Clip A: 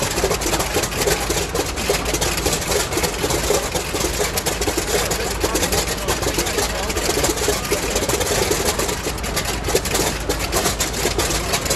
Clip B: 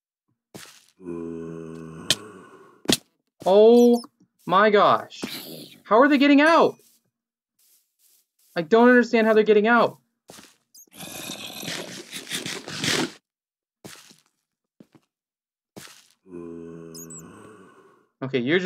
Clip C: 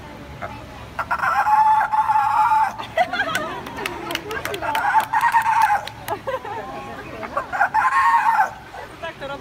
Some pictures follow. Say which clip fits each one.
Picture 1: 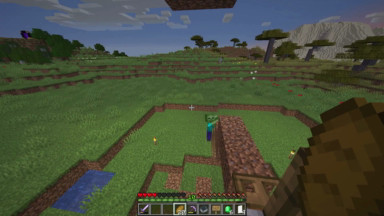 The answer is B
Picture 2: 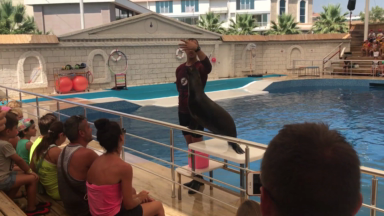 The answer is C